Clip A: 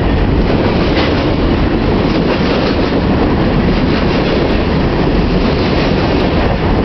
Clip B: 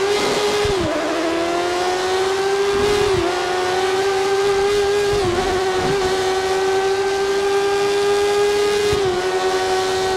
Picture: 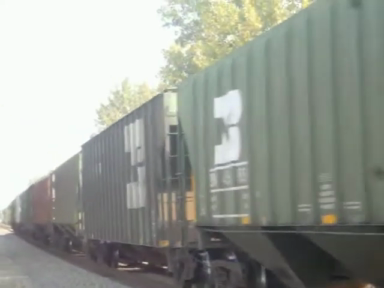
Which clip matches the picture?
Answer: A